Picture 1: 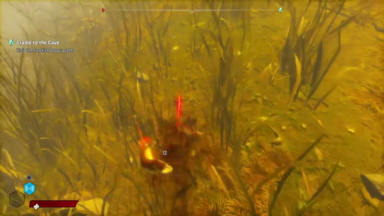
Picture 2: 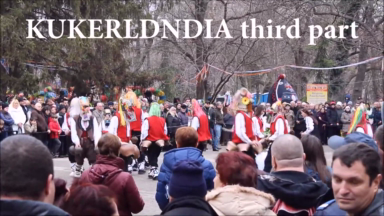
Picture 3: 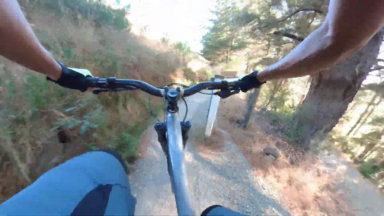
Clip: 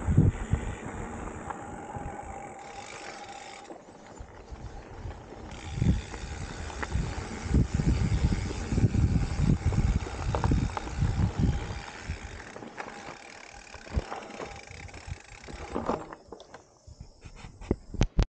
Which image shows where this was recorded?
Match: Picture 3